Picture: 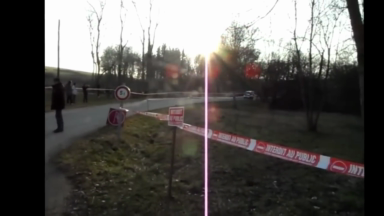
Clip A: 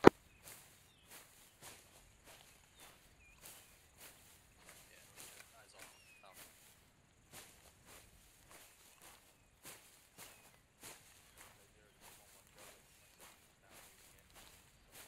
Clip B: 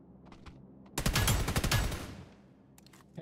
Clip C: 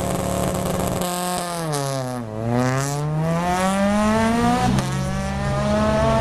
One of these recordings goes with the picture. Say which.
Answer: C